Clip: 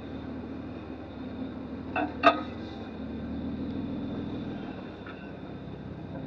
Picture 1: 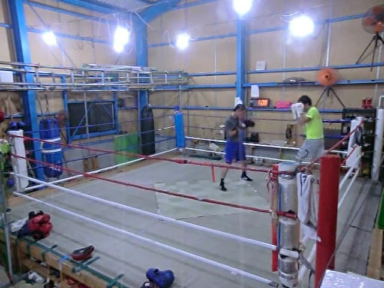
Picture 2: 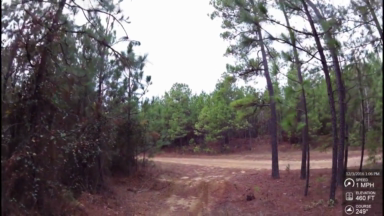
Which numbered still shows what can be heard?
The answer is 2